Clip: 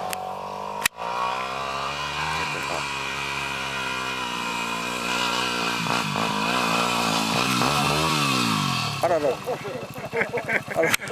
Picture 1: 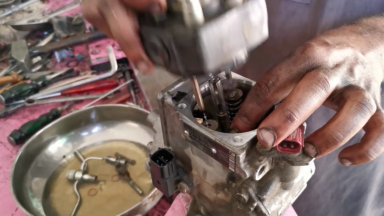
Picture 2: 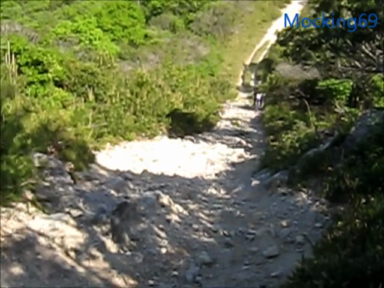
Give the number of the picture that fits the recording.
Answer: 2